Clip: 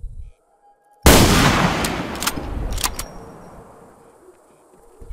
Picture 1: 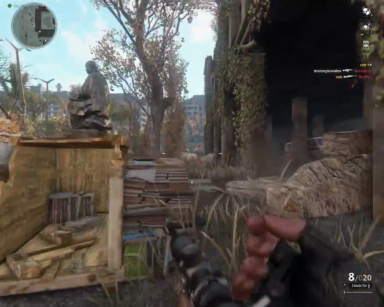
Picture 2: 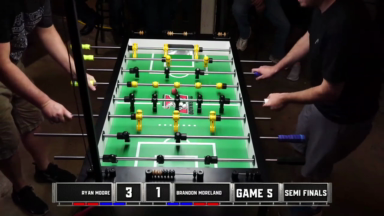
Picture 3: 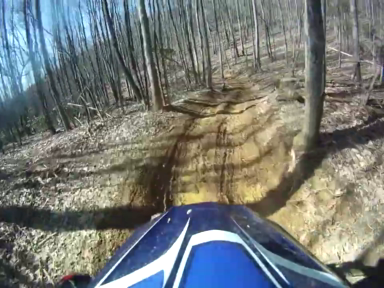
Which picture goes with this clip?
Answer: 1